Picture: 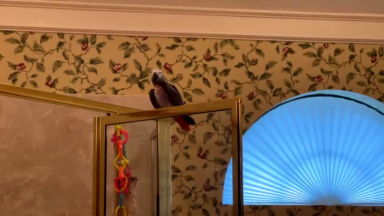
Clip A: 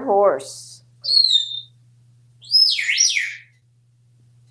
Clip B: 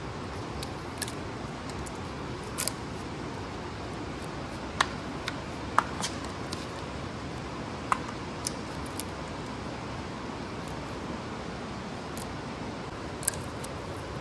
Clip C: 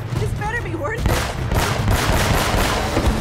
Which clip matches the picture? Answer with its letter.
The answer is A